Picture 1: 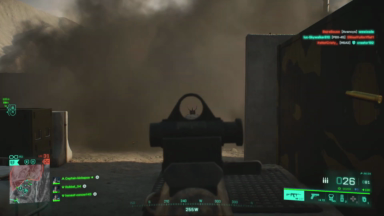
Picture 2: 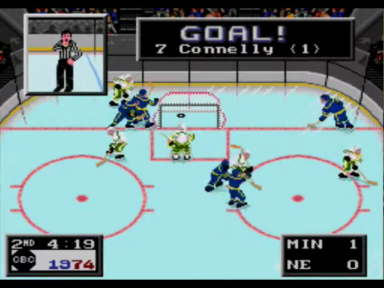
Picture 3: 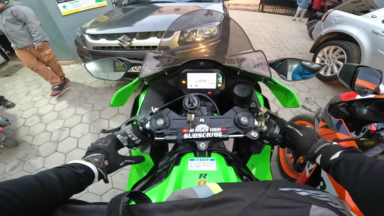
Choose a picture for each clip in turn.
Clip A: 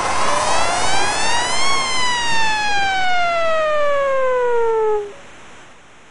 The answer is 2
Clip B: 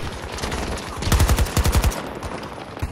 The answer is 1